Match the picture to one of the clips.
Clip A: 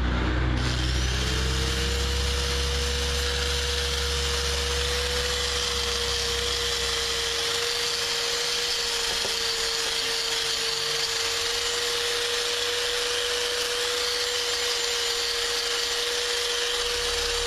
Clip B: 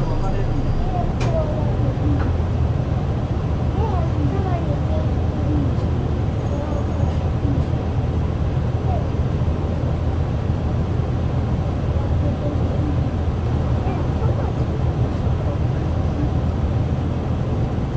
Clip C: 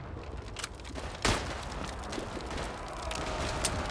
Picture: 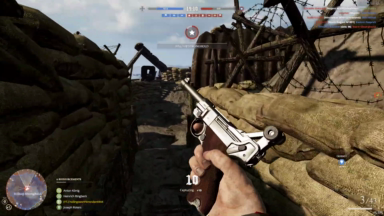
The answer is C